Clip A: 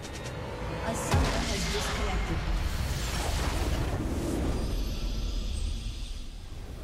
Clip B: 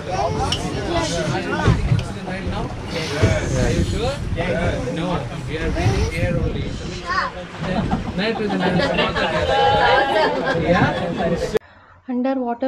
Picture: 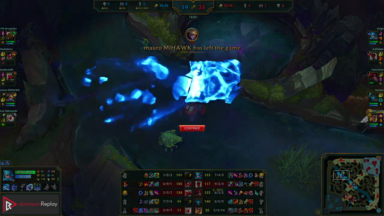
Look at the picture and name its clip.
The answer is A